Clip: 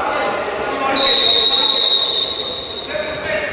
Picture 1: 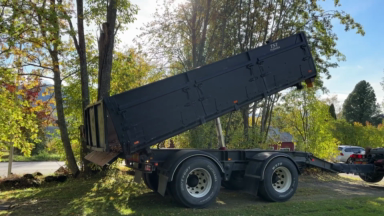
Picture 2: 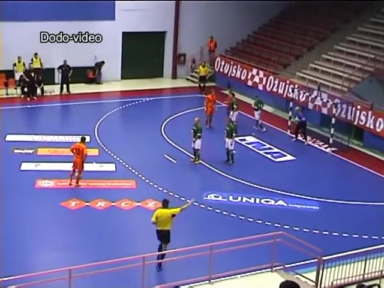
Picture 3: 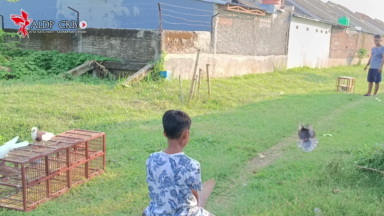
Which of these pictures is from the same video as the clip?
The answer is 2